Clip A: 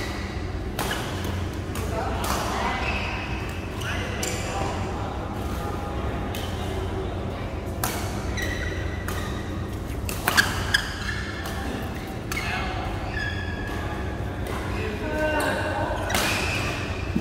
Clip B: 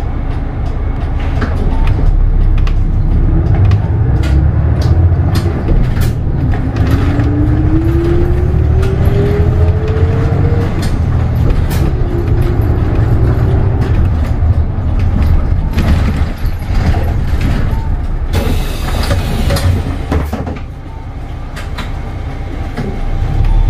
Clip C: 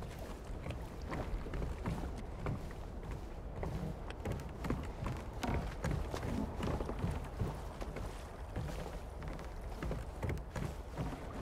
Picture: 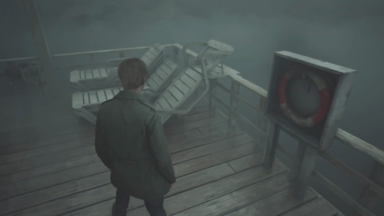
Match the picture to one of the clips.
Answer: C